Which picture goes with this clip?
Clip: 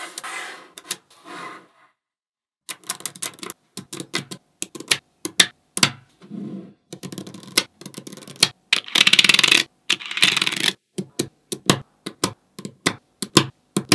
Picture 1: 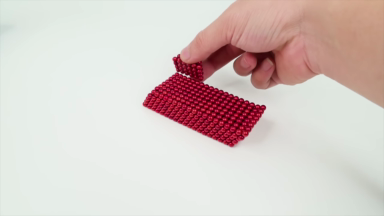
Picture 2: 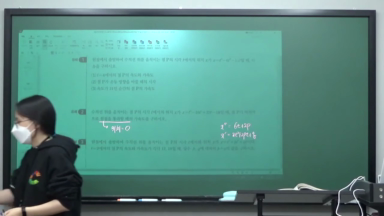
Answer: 1